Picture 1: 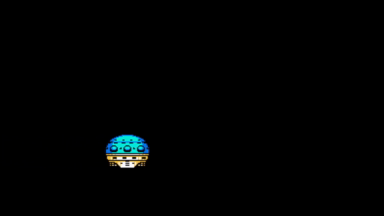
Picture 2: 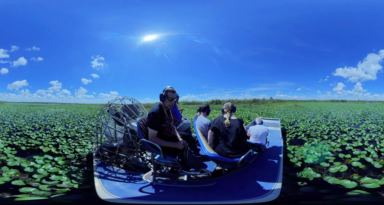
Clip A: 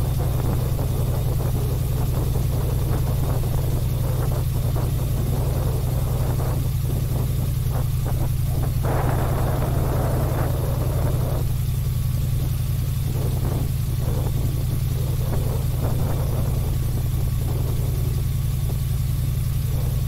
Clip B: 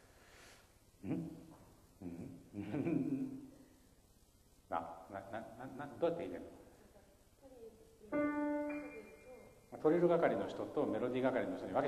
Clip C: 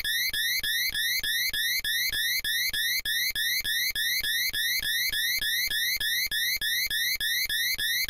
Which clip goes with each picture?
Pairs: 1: C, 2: A